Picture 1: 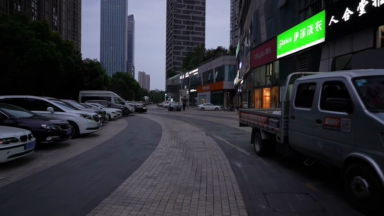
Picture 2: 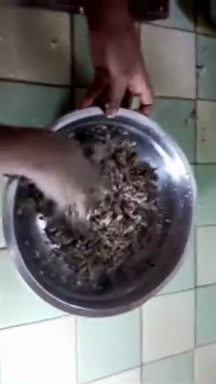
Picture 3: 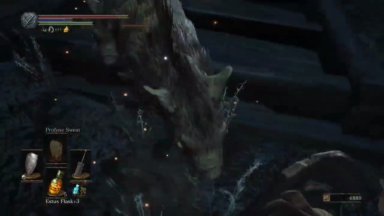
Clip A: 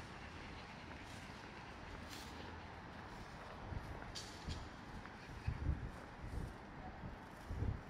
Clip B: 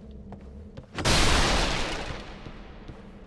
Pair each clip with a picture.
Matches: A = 1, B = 3